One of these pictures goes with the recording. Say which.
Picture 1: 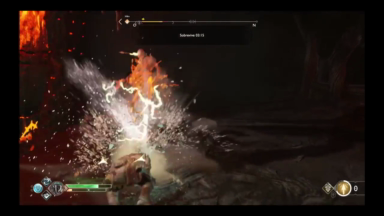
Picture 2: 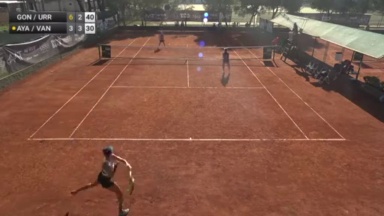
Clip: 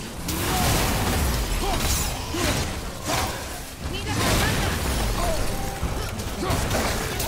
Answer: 1